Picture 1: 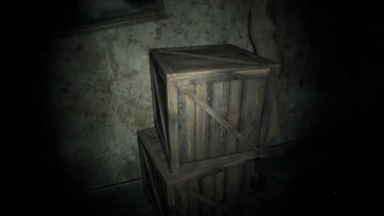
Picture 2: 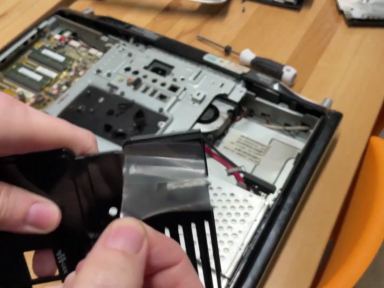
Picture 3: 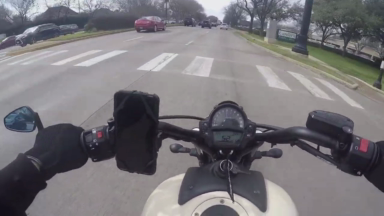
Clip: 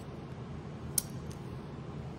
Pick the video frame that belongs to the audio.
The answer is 2